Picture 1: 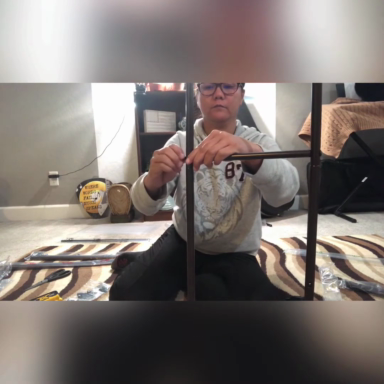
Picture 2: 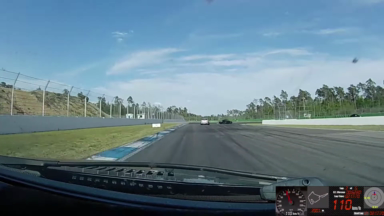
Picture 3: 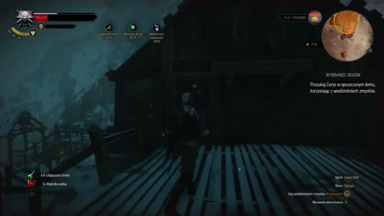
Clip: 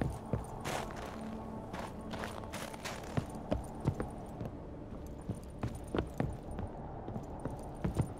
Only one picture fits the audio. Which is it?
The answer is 3